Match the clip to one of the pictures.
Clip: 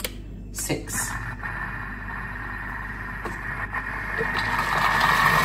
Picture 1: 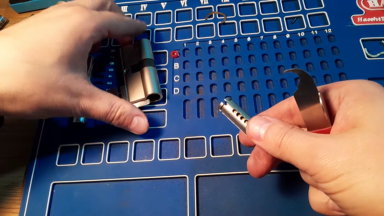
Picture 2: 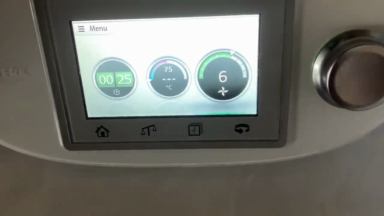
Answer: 2